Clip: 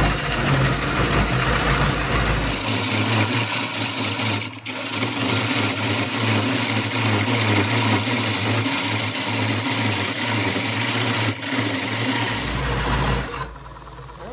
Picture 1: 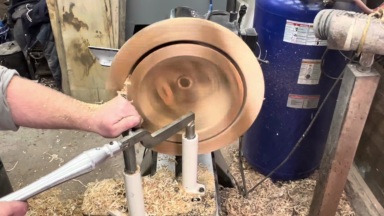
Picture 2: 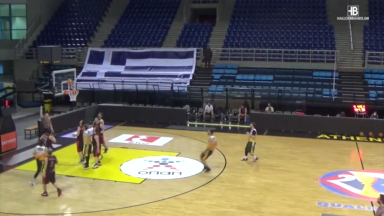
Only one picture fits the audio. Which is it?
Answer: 1